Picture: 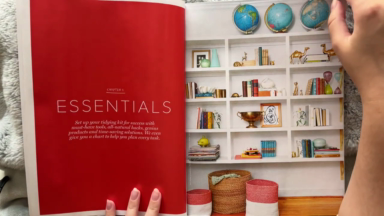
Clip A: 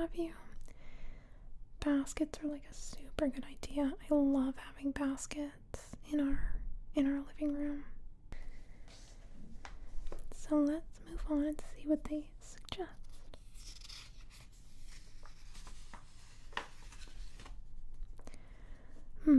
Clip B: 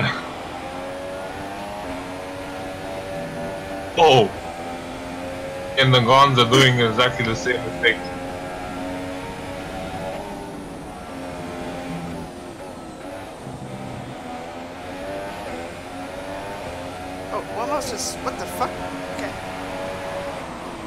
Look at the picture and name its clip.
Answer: A